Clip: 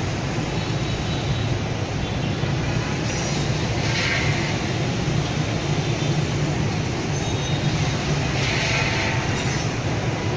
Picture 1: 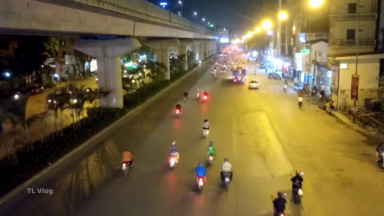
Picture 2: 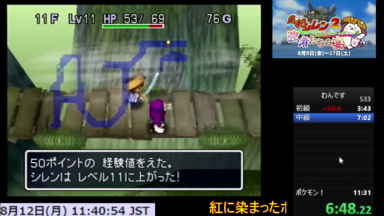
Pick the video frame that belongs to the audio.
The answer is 1